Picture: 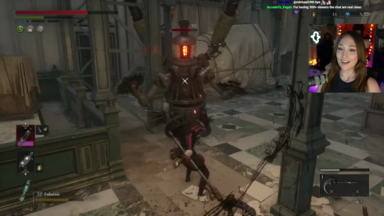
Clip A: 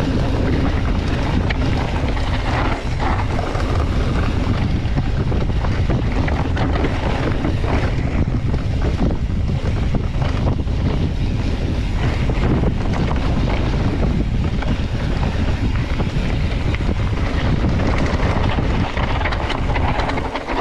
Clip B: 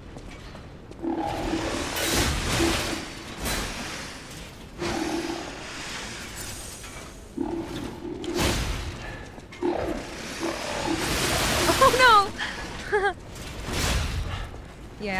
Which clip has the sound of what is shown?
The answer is B